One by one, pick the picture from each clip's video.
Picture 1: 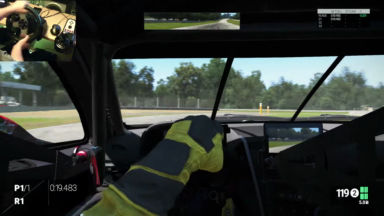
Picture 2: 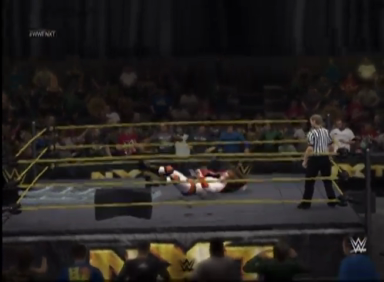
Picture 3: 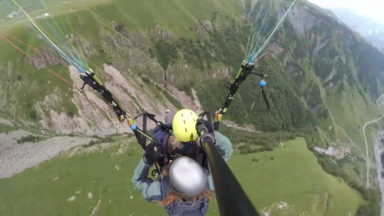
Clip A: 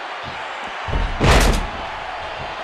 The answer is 2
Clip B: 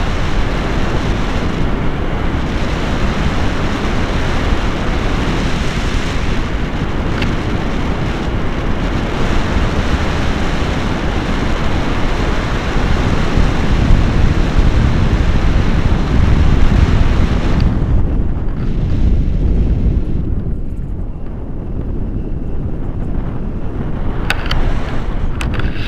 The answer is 3